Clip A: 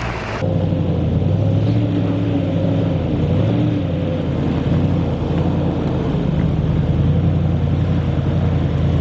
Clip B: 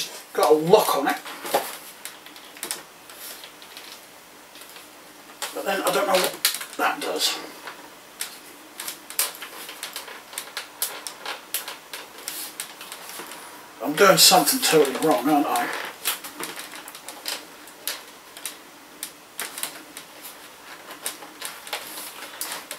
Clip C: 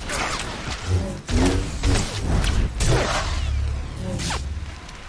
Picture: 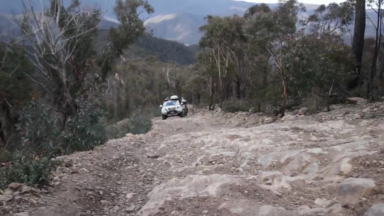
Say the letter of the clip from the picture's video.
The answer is A